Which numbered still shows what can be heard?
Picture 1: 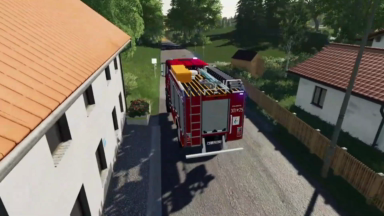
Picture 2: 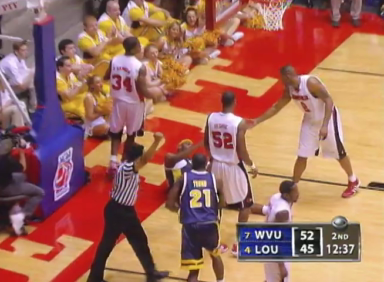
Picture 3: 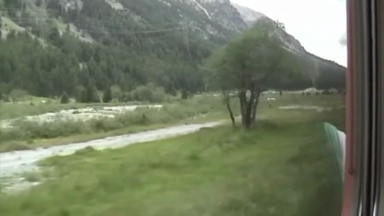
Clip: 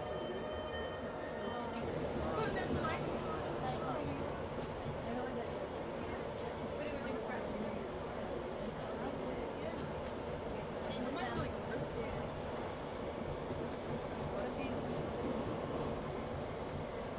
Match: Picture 3